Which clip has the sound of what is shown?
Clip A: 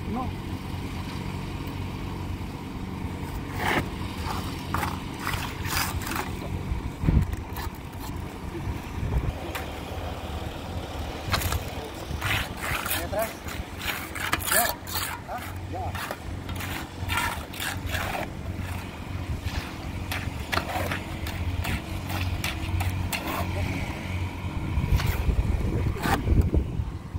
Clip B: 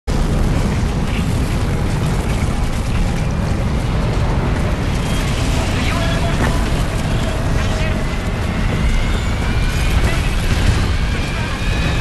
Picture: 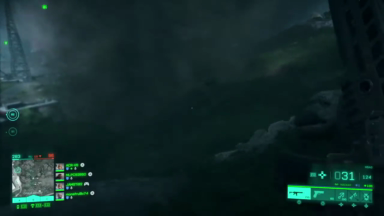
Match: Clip B